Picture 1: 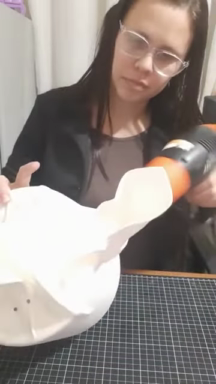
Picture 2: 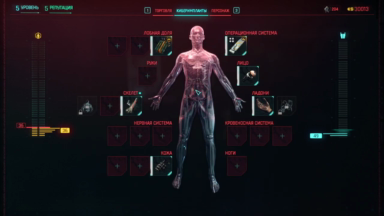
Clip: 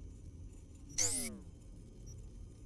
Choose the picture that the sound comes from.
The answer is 2